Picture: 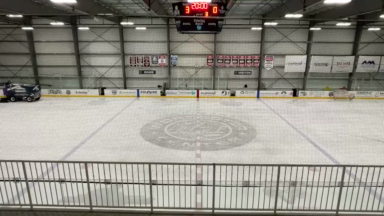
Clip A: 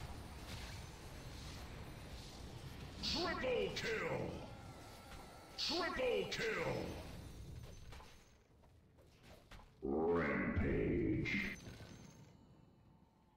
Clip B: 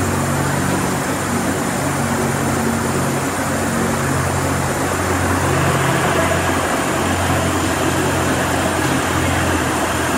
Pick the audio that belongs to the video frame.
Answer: B